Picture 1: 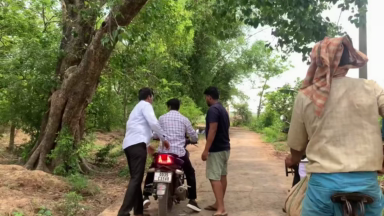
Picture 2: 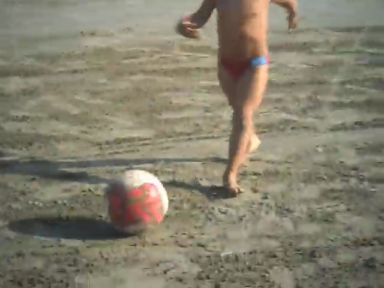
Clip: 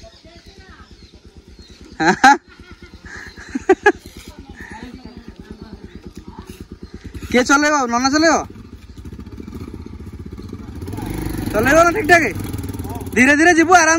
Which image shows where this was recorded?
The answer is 1